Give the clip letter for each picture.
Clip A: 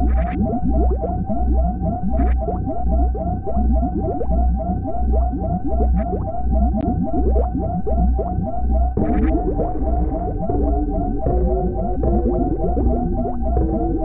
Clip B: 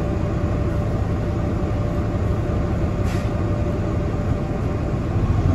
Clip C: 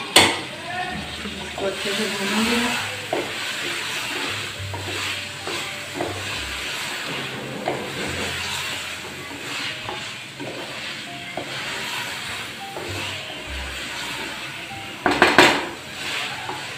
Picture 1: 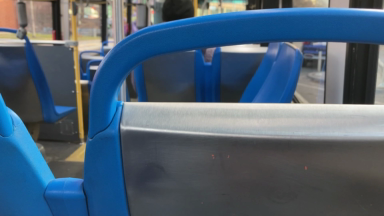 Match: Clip B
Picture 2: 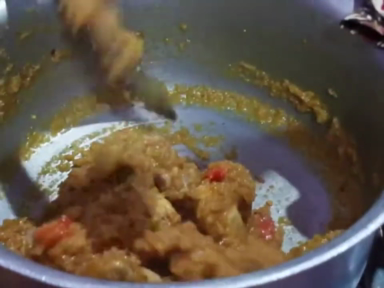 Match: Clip C